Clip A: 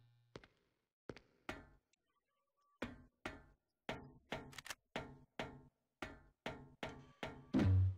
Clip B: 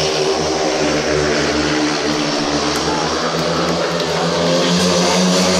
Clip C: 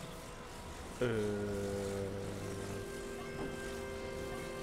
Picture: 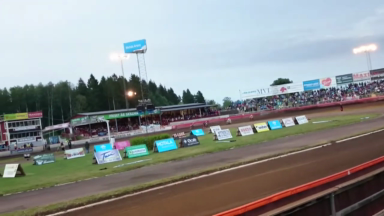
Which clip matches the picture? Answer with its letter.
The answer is B